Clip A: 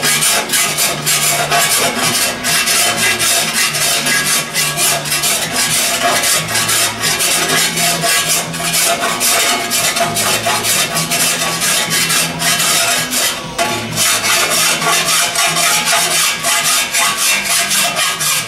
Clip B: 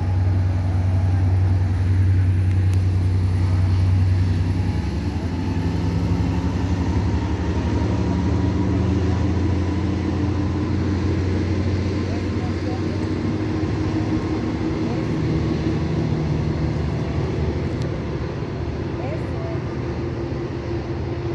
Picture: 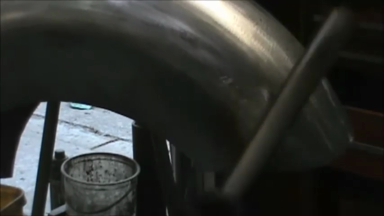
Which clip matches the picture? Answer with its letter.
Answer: A